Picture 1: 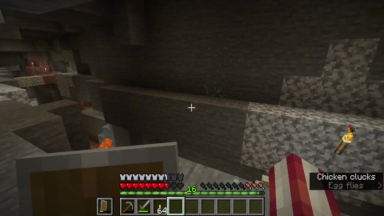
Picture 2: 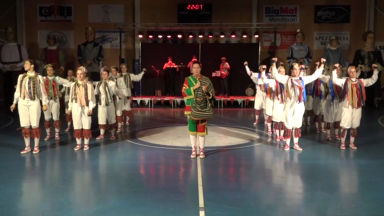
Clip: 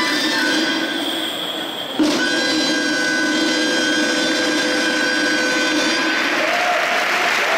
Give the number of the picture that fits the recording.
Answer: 2